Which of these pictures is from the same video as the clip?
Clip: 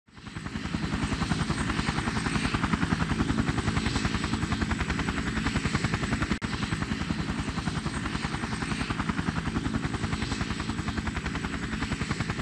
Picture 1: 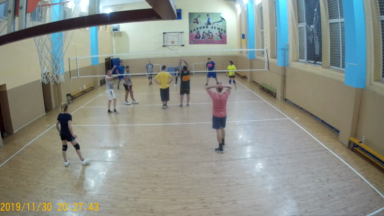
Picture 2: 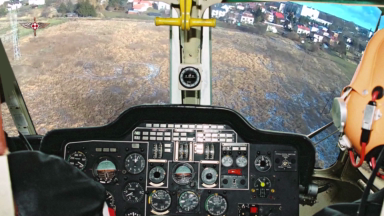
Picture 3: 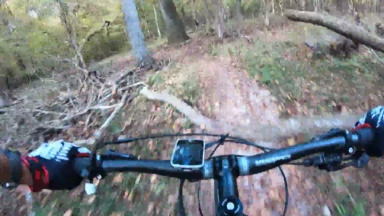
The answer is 2